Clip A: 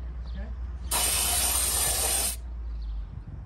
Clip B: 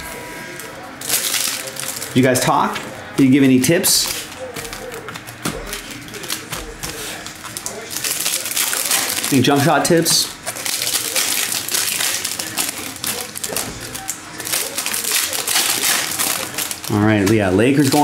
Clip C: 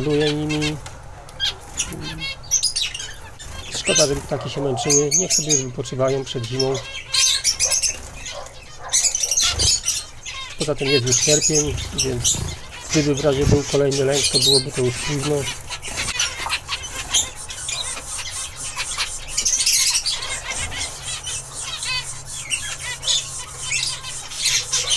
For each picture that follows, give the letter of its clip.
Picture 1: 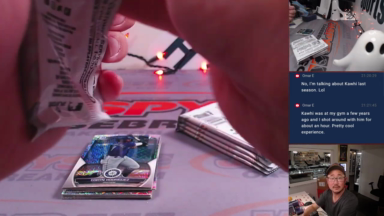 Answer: B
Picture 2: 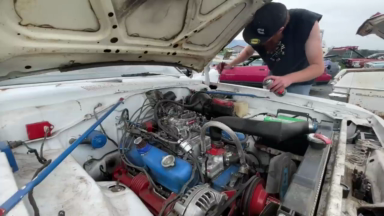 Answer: A